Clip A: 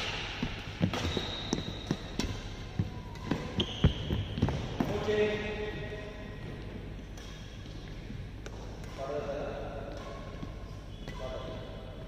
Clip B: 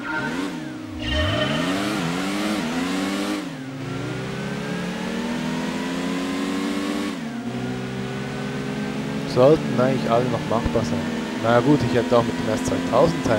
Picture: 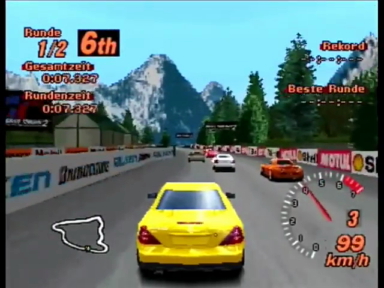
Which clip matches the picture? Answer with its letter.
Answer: B